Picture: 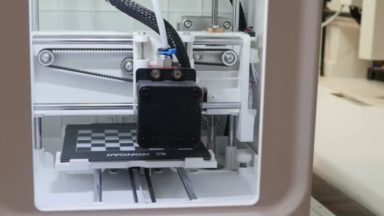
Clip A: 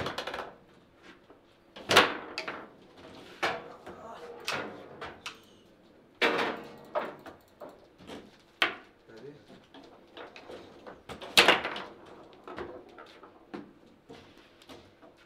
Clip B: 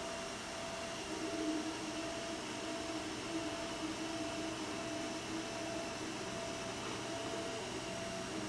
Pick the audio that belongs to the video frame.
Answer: B